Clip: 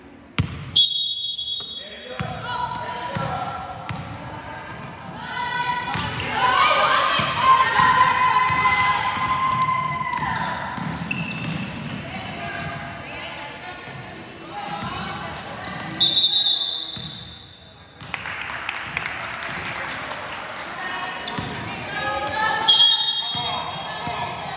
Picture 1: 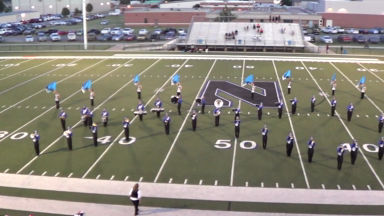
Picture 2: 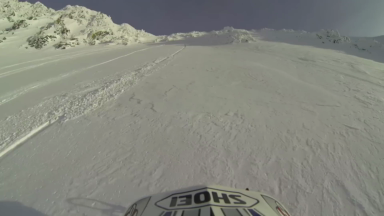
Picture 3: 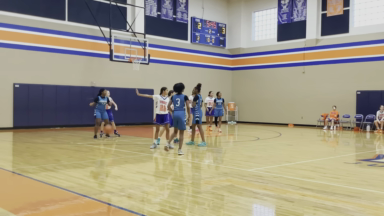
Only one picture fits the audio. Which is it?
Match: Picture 3